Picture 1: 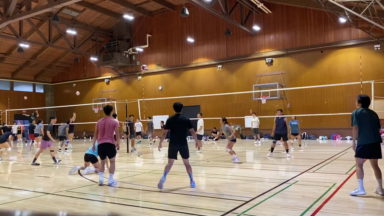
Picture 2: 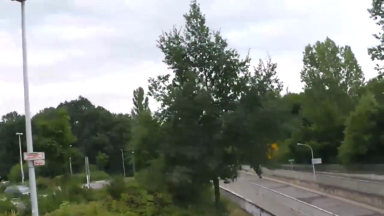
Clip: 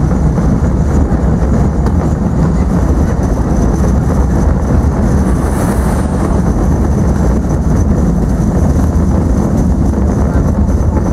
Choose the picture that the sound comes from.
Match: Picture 2